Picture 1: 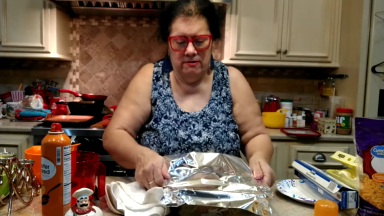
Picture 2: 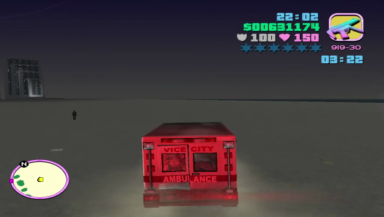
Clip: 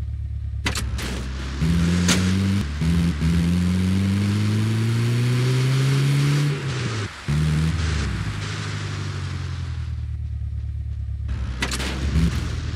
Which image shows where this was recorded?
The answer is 2